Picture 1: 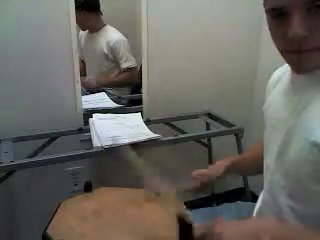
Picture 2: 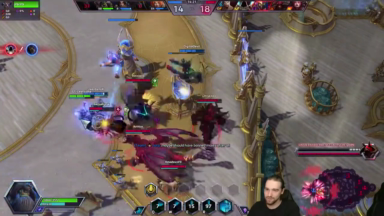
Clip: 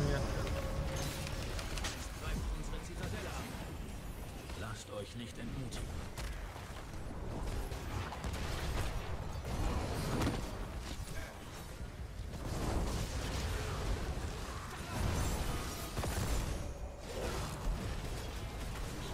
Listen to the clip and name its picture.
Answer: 2